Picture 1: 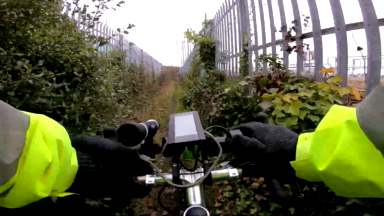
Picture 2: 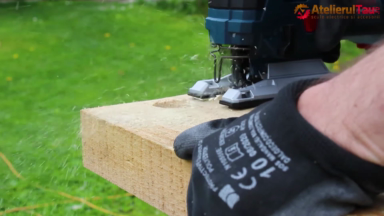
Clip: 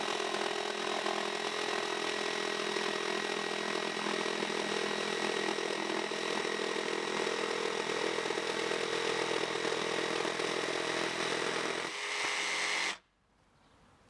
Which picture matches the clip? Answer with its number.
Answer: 2